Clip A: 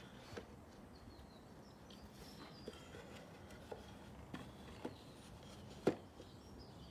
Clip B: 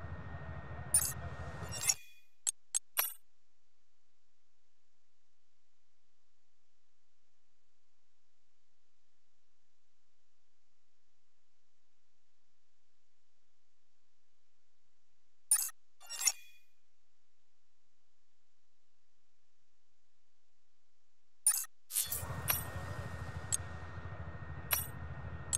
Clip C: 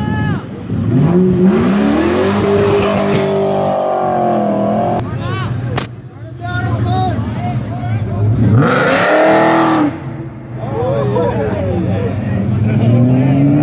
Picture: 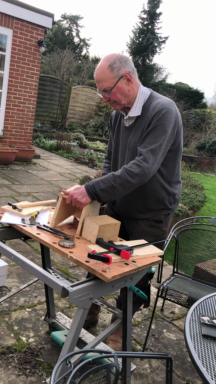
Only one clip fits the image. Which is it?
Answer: A